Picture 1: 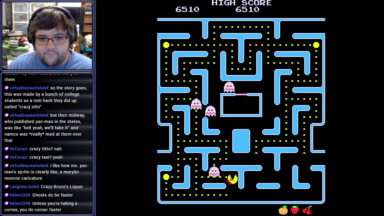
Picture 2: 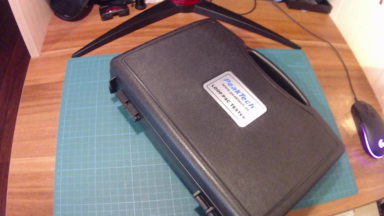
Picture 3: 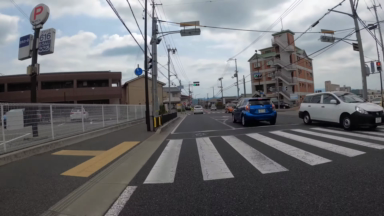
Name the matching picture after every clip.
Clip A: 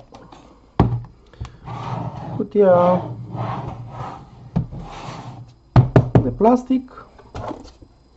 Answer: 2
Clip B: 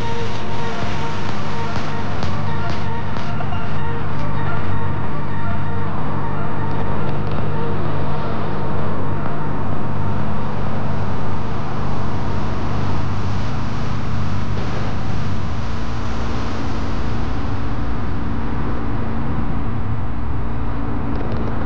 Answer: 3